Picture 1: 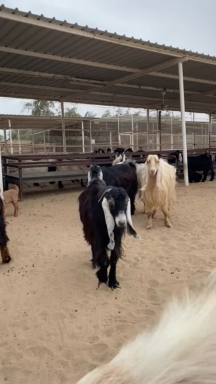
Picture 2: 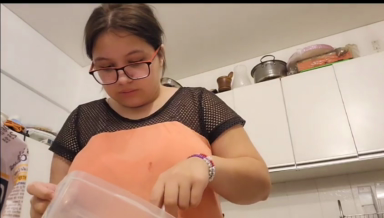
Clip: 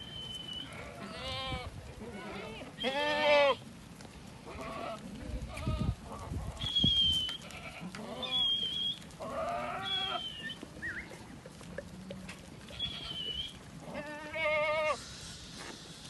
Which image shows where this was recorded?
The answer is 1